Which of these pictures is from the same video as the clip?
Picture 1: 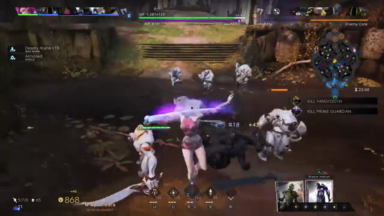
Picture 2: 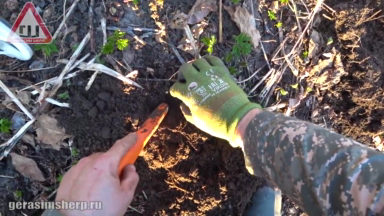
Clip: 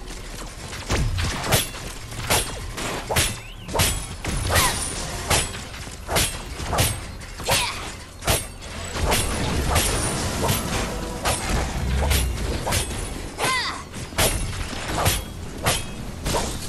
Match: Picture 1